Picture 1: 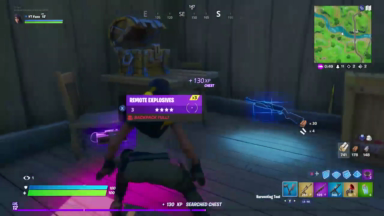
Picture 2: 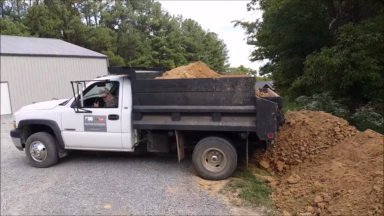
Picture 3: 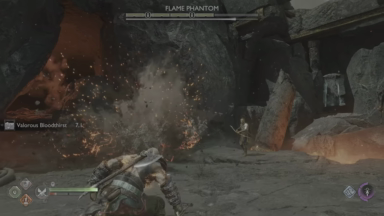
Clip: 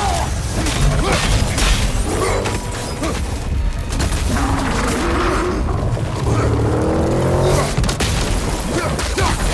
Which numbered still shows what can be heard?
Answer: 3